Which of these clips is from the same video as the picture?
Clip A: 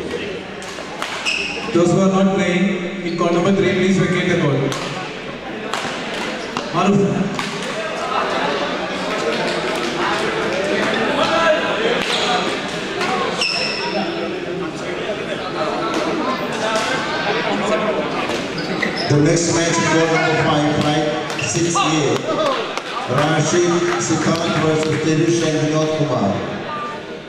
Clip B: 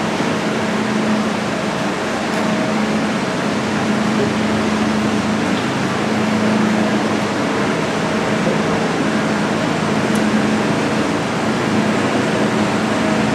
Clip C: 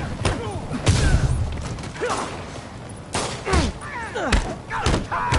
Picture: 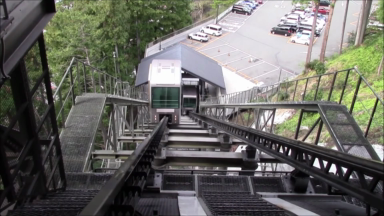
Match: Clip B